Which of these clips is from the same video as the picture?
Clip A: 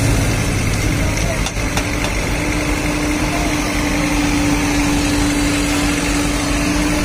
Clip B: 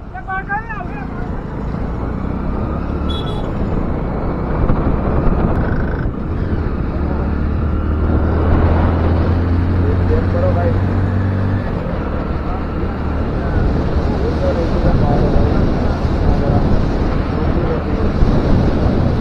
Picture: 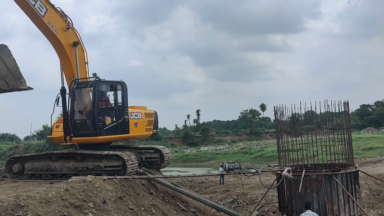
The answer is A